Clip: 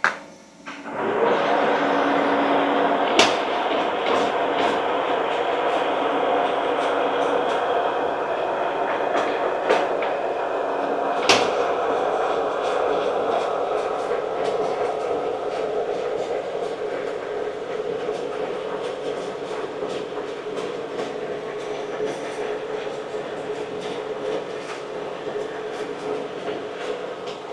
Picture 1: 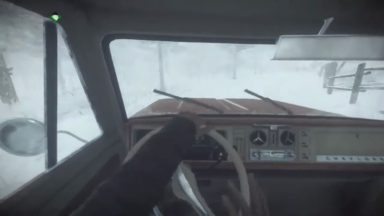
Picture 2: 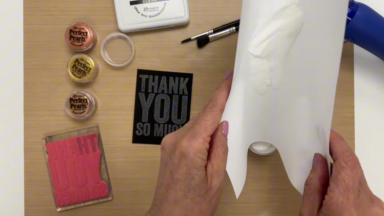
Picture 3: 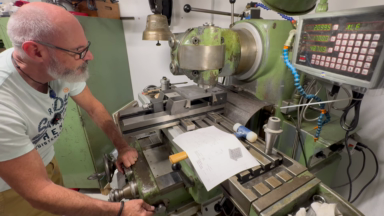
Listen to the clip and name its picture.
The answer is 3